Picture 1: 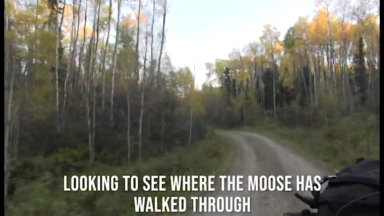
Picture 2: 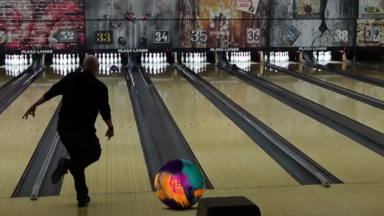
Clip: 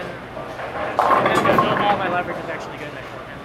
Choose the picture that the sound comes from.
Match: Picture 2